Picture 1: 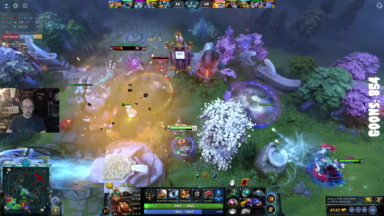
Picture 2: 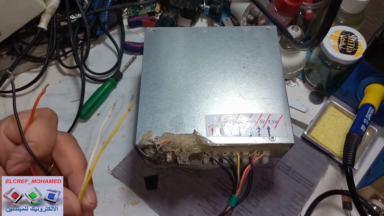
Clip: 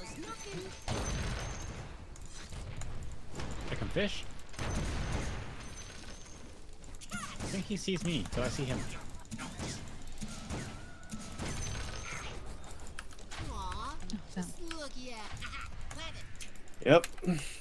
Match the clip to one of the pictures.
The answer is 1